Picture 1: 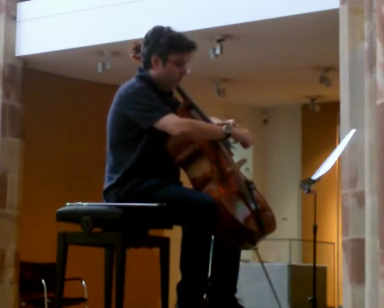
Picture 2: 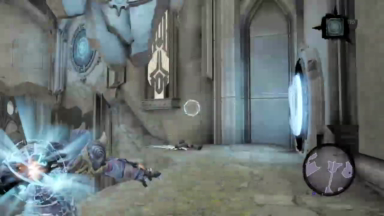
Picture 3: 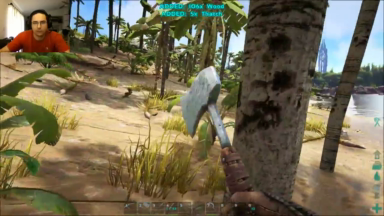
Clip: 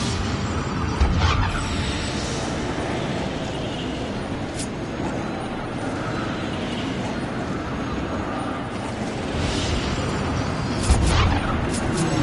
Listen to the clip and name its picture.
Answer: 2